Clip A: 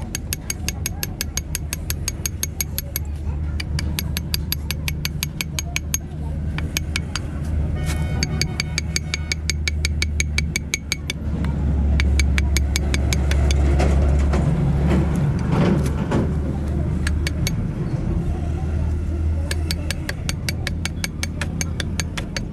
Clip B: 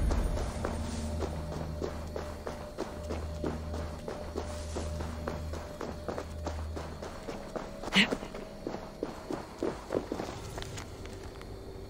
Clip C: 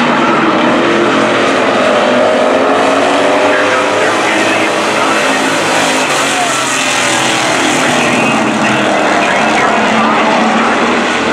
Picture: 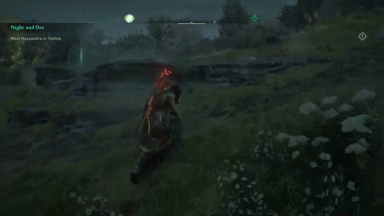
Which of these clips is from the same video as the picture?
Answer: B